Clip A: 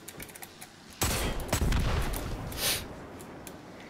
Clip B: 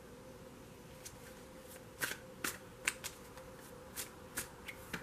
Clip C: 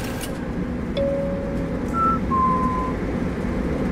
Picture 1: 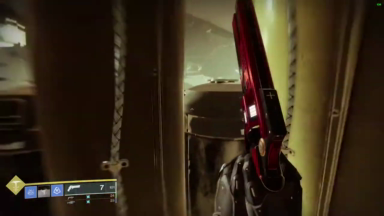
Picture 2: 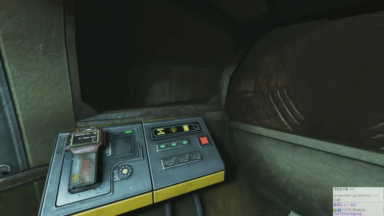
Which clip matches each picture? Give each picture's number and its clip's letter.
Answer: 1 A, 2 C